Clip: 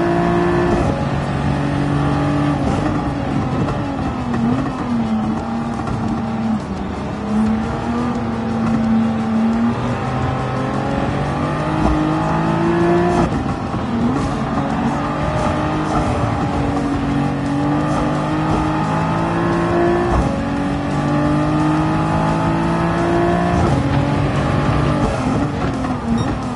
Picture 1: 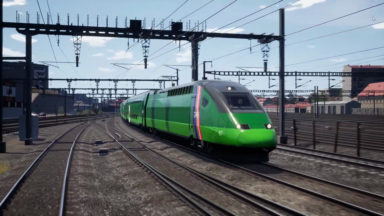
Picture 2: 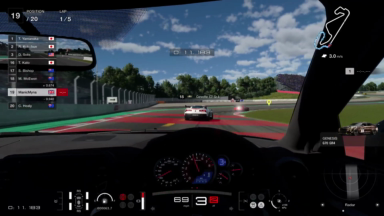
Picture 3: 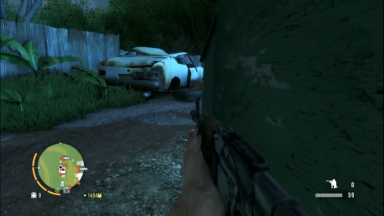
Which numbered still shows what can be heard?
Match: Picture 2